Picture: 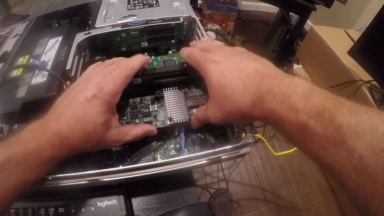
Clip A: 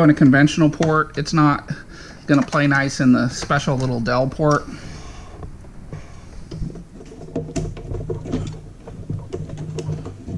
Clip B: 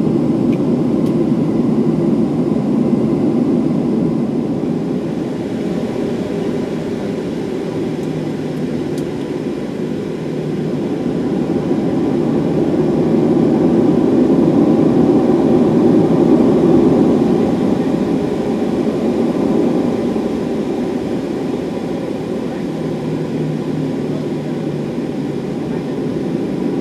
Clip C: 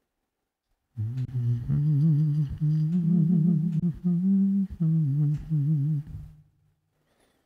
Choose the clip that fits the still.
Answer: A